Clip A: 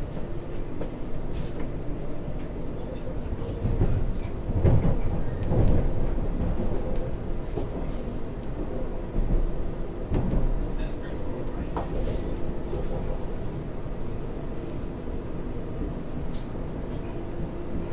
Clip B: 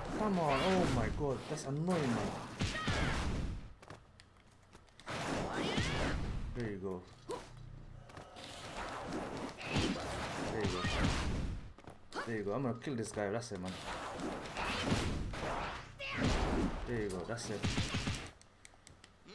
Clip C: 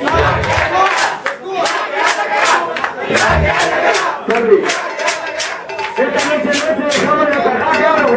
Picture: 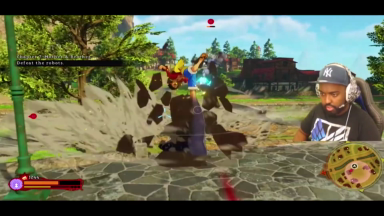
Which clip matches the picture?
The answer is B